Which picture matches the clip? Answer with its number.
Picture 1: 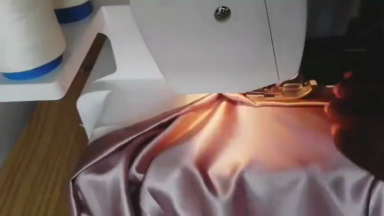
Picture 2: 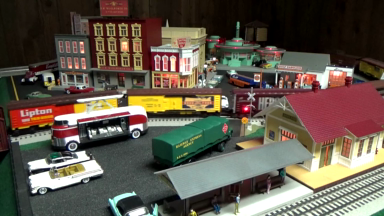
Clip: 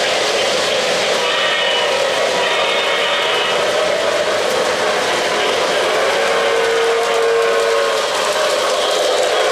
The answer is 2